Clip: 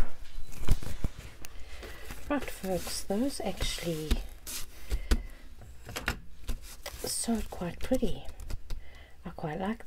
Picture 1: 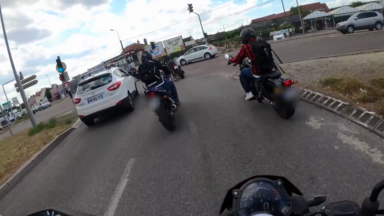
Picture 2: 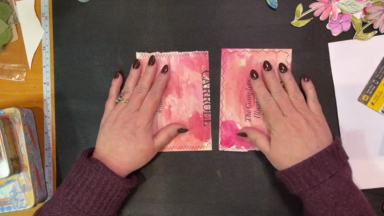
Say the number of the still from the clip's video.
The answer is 2